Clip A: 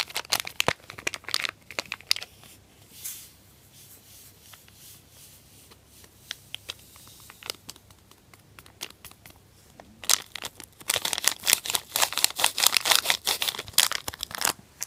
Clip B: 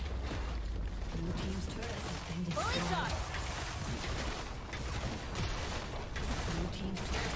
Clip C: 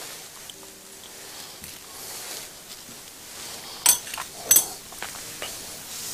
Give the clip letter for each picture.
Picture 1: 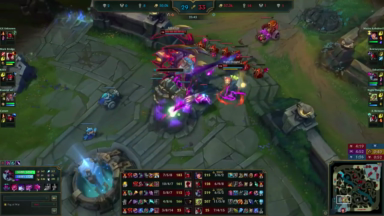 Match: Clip B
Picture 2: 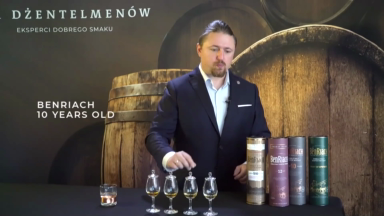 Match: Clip C